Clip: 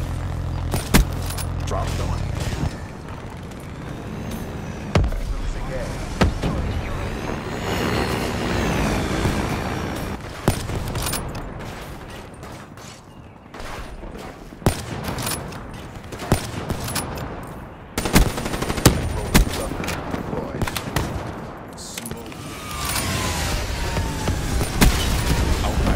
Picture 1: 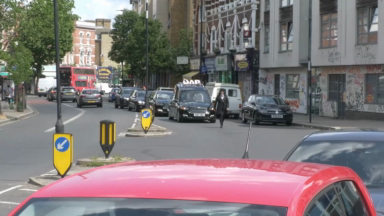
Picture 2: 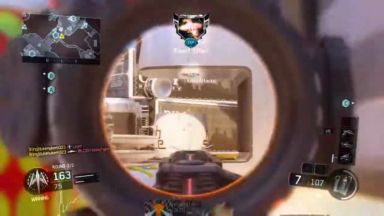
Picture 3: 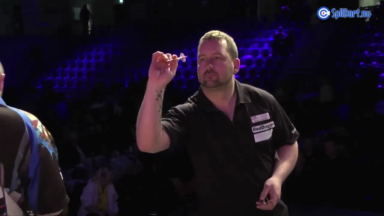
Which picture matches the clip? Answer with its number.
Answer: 2